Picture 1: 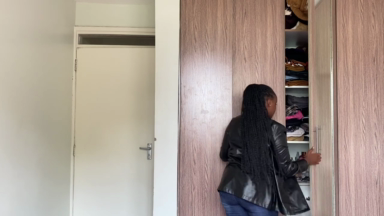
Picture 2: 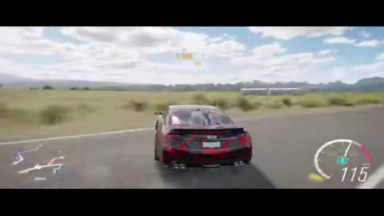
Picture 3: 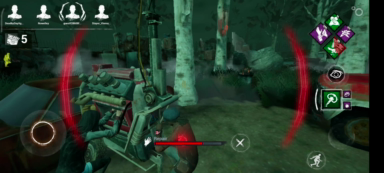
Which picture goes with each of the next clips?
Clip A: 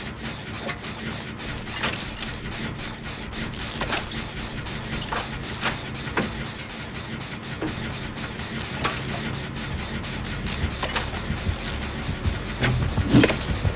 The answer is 3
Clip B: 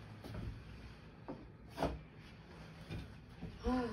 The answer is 1